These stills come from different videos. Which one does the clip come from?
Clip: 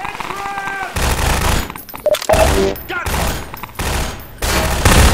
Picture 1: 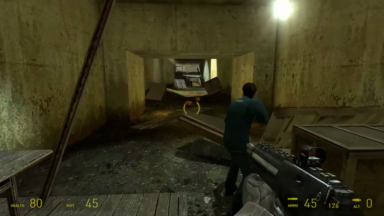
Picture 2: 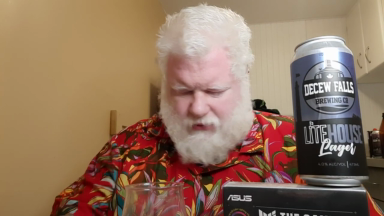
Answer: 1